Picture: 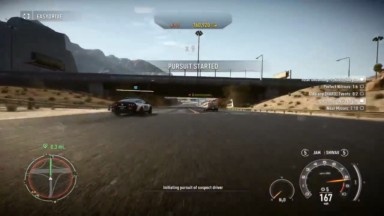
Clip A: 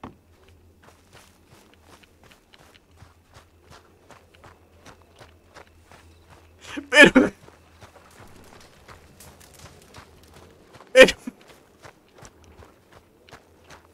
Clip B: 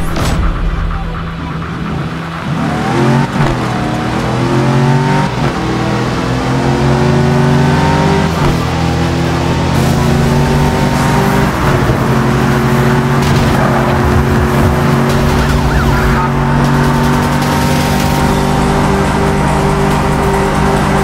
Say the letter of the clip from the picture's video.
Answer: B